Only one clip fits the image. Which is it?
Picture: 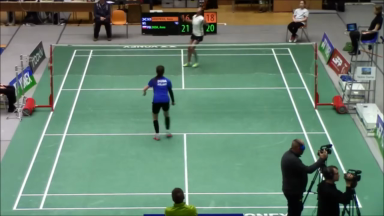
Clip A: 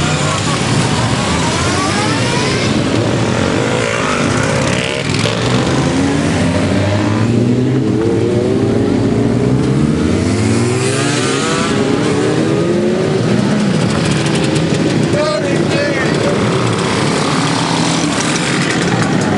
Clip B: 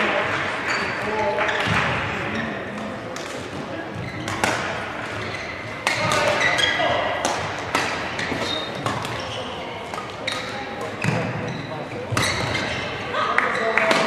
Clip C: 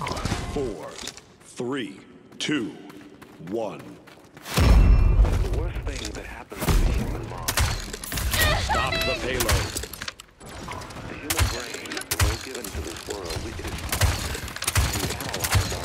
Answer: B